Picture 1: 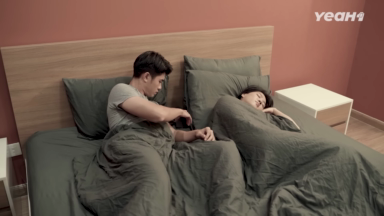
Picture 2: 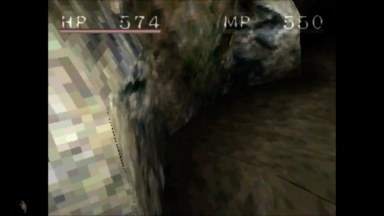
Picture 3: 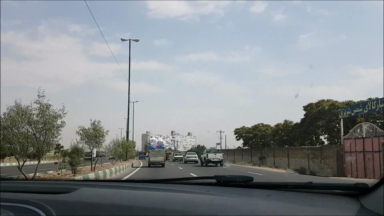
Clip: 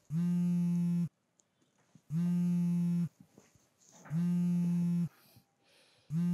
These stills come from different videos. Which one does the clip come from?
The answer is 1